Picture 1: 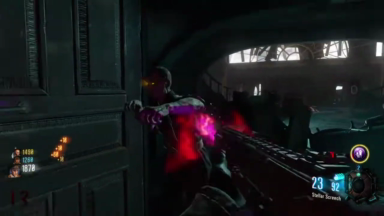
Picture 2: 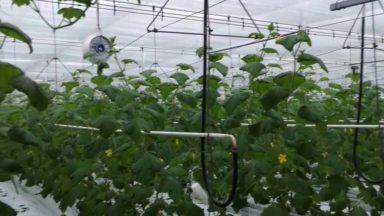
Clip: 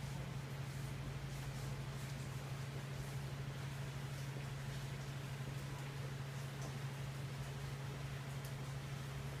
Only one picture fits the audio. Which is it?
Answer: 2